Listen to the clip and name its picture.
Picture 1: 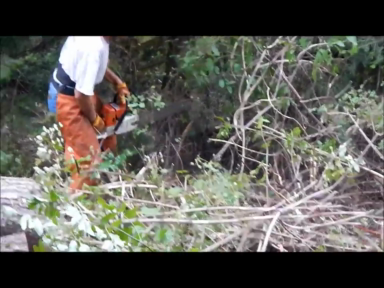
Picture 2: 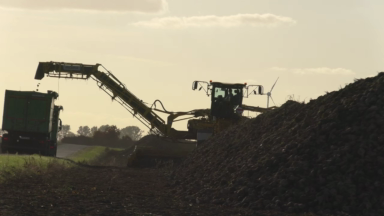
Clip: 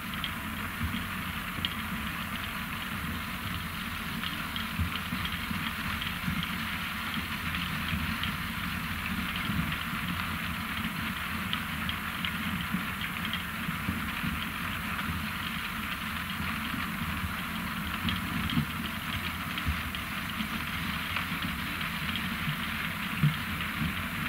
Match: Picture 2